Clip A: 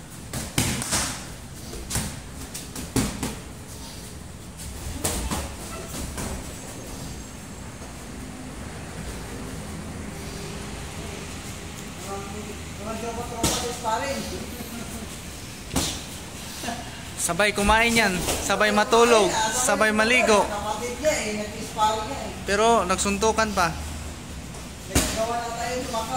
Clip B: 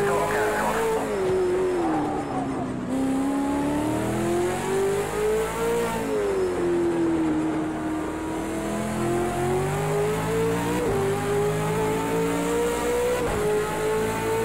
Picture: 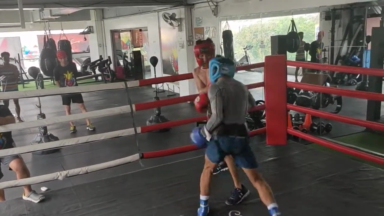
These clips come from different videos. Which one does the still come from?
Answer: A